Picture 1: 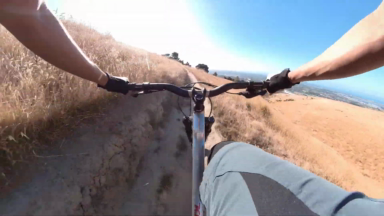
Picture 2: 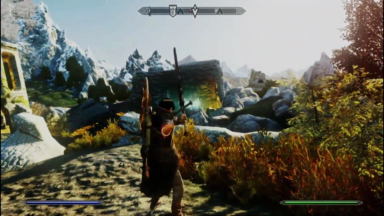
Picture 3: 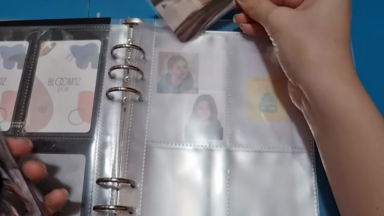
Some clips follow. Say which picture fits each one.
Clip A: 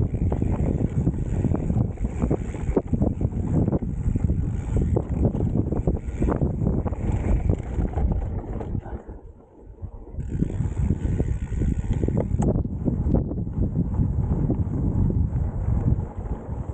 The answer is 1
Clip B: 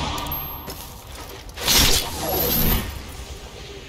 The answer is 2